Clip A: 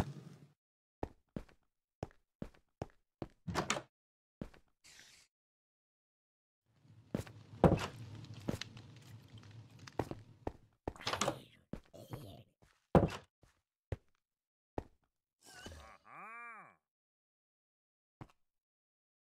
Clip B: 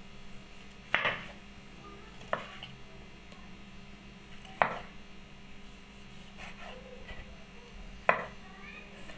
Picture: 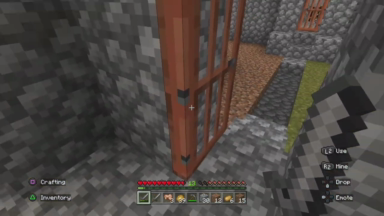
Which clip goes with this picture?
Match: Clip A